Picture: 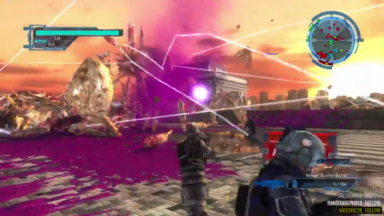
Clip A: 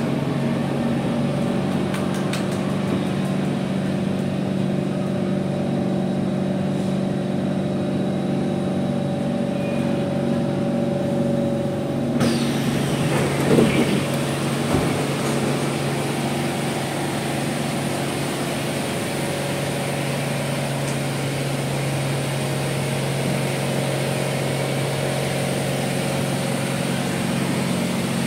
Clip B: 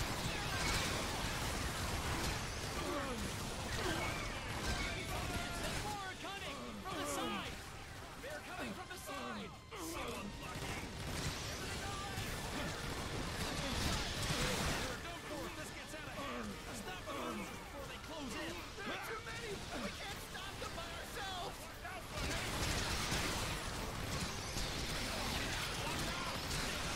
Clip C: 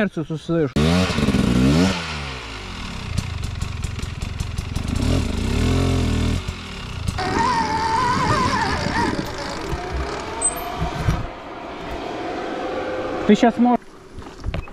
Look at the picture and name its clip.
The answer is B